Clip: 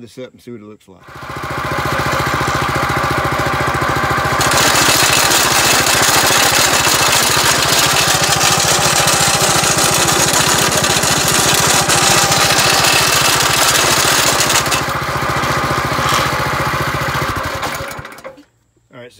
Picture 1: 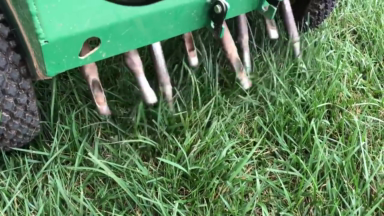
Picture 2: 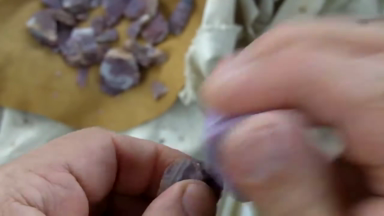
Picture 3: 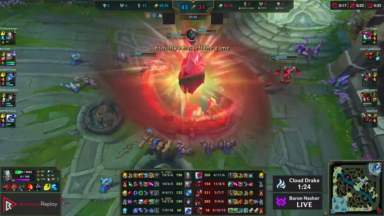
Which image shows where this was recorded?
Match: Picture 1